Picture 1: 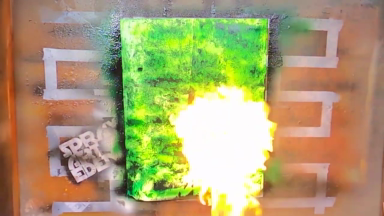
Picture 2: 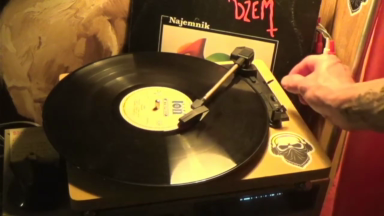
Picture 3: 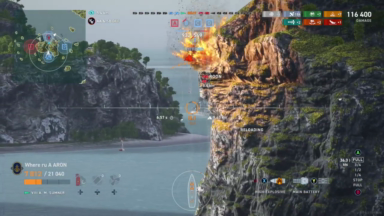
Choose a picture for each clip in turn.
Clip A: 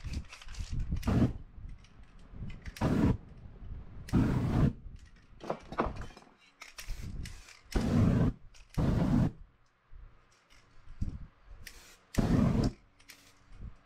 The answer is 1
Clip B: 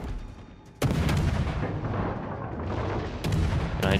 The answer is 3